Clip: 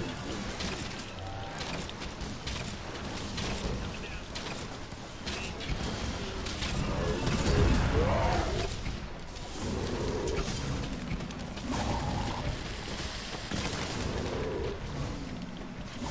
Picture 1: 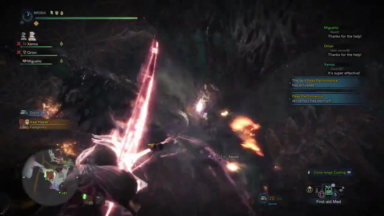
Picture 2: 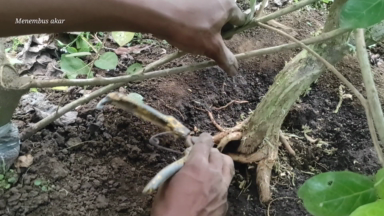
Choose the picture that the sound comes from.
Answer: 1